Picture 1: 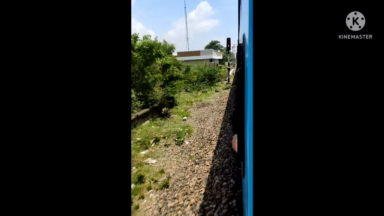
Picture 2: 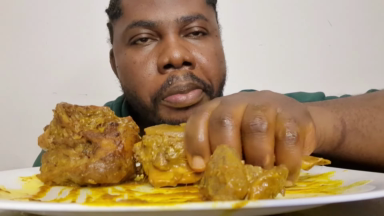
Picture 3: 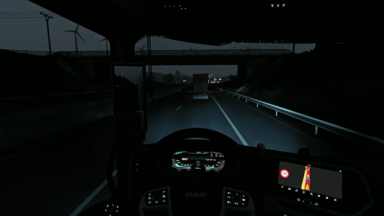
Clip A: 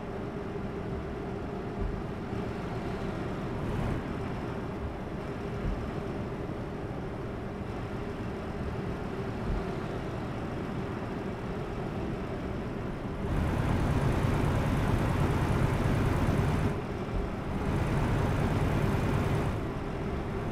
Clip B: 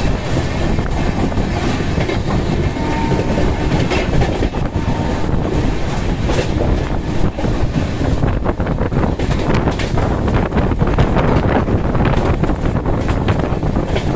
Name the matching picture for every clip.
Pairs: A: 3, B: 1